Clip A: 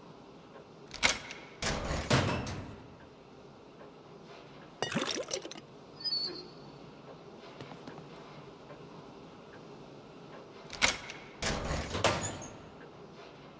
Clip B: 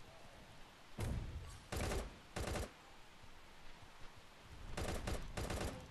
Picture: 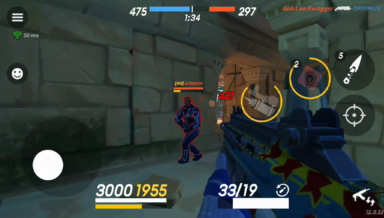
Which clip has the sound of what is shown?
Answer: B